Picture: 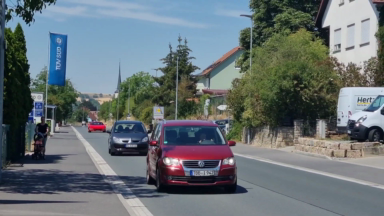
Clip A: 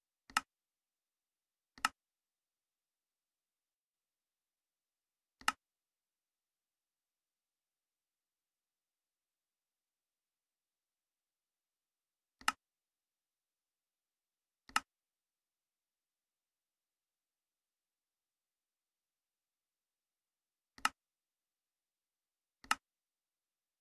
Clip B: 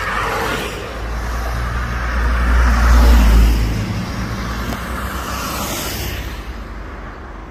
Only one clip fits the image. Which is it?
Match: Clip B